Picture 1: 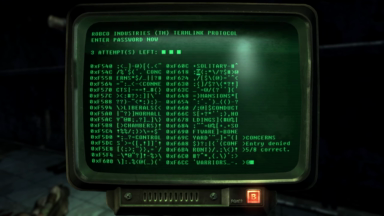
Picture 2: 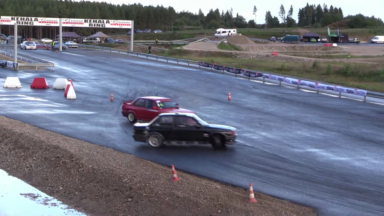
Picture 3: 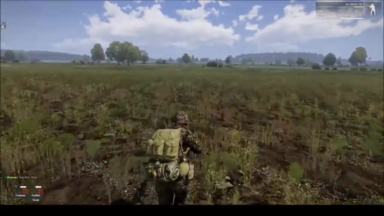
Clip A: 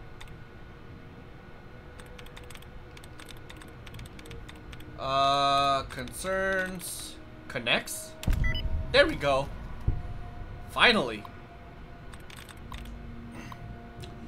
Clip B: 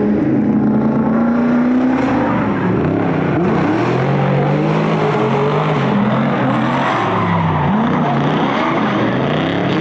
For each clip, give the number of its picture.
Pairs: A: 1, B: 2